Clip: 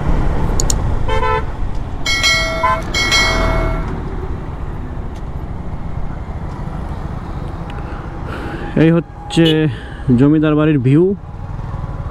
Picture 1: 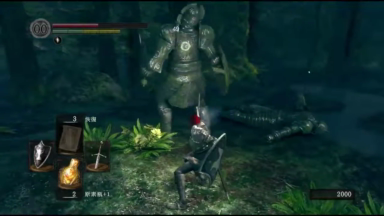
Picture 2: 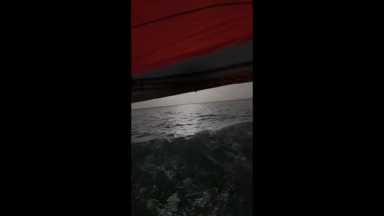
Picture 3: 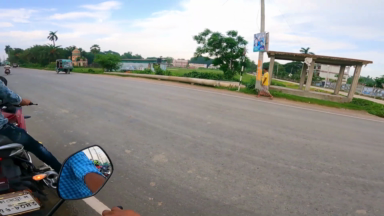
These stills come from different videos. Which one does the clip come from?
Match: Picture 3